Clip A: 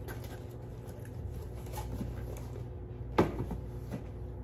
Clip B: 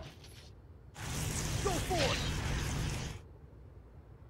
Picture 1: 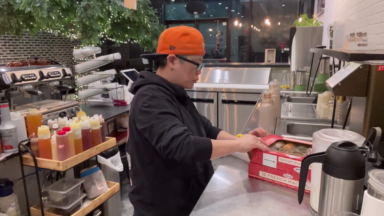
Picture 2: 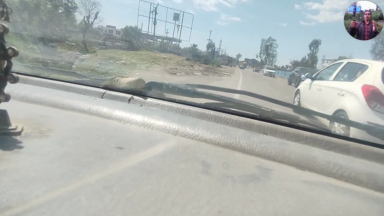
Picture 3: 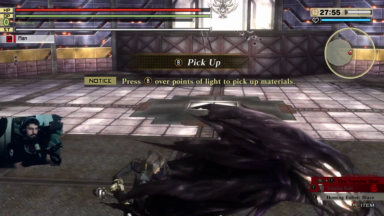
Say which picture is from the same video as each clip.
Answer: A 1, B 3